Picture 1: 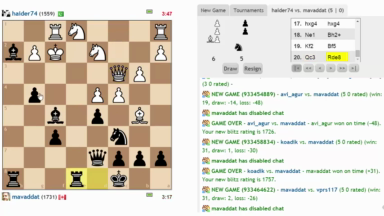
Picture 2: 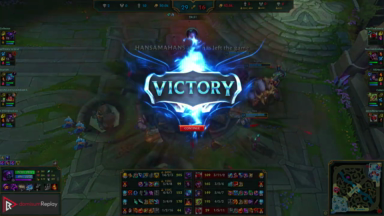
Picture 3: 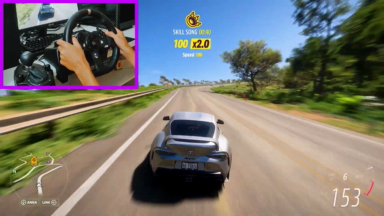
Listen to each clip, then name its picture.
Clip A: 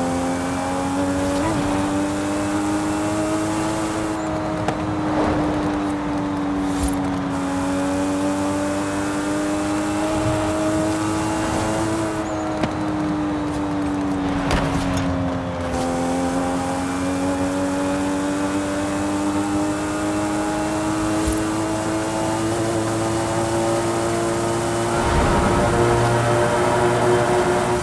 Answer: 3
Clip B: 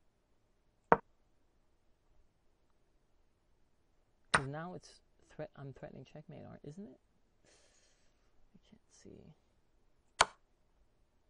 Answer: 1